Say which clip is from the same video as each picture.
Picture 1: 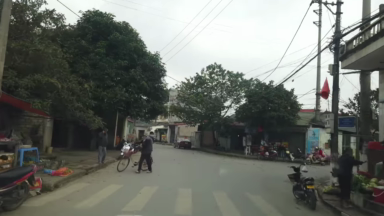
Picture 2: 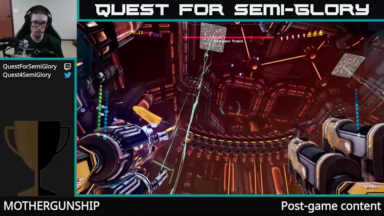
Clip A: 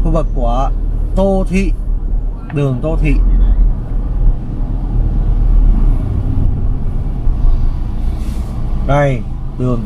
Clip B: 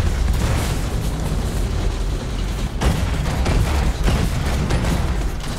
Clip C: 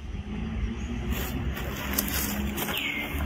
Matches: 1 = A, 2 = B